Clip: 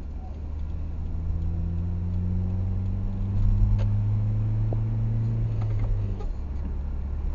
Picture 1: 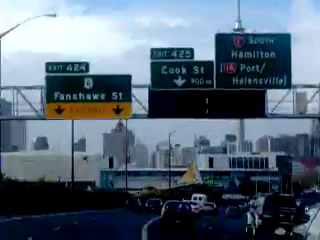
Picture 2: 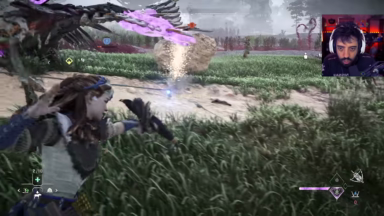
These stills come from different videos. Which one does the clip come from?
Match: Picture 1